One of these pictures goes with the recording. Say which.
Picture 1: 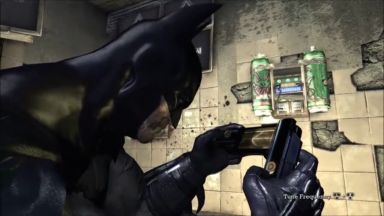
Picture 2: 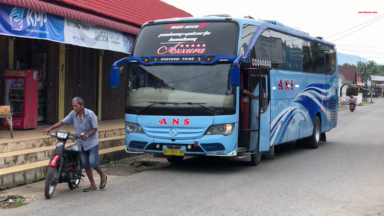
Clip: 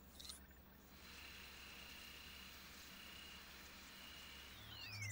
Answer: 1